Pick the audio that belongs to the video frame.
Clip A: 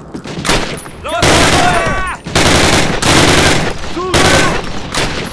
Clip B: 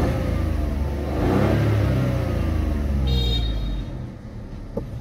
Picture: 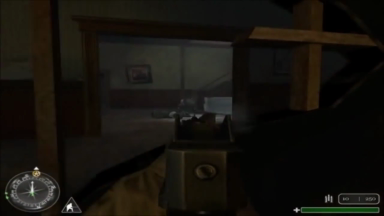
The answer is A